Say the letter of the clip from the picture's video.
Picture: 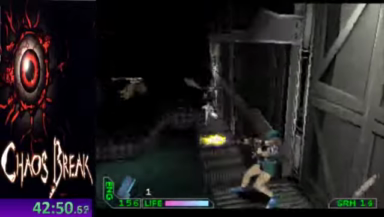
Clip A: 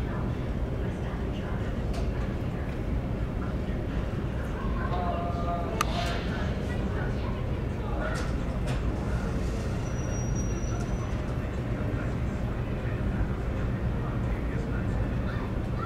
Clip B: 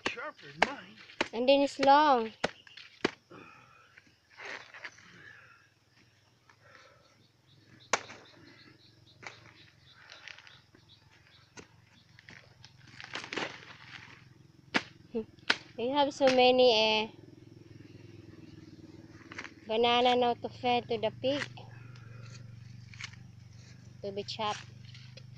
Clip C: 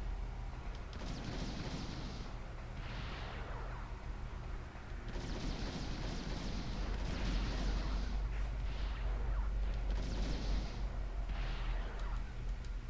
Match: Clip C